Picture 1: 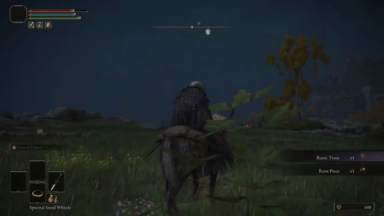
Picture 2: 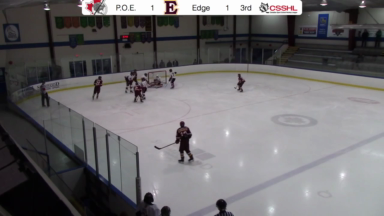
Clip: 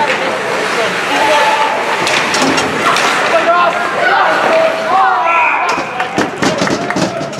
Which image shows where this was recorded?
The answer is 2